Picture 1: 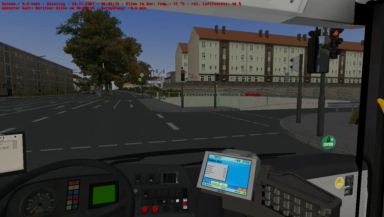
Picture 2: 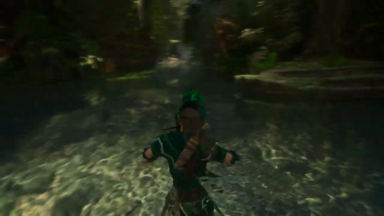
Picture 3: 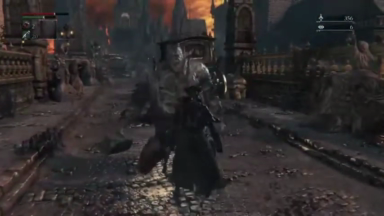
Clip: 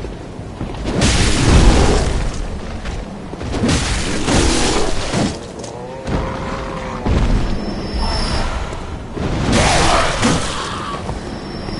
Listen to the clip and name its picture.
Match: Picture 3